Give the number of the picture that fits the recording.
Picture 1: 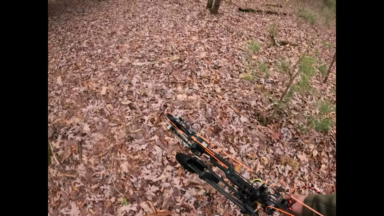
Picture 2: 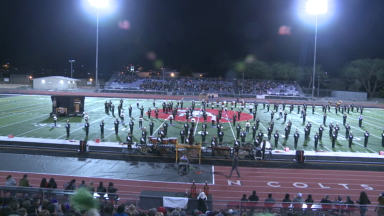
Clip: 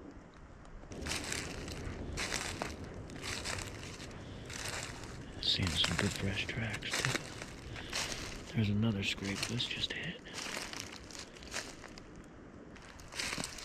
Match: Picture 1